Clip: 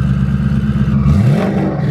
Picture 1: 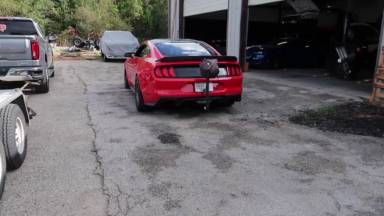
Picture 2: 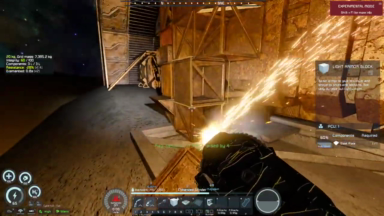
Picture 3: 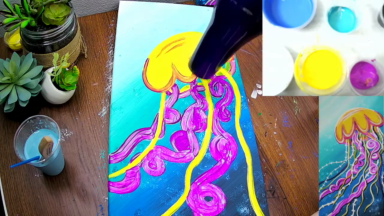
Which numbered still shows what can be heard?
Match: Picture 1